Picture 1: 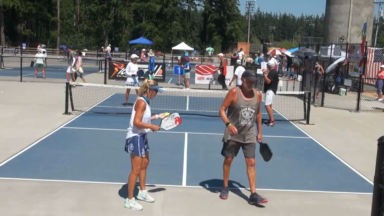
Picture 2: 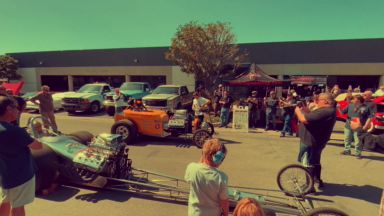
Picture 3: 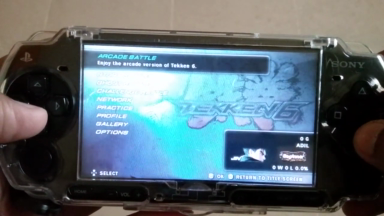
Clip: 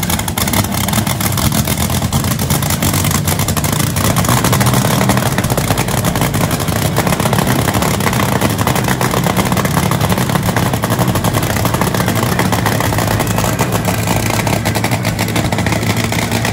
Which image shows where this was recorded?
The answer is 2